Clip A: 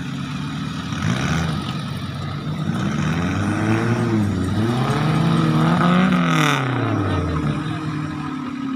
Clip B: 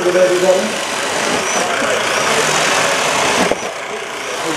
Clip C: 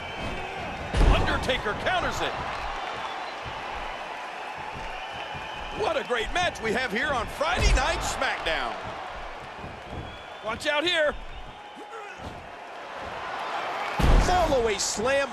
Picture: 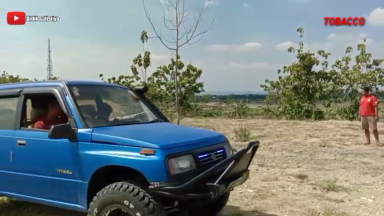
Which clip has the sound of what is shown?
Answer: A